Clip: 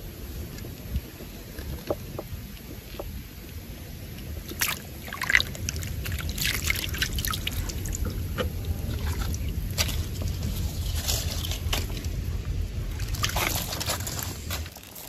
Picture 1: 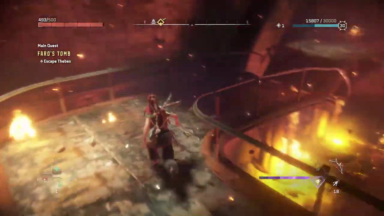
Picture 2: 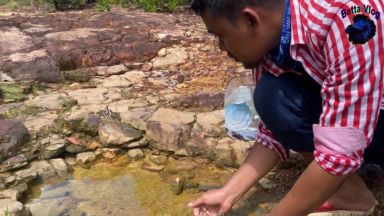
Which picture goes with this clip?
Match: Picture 2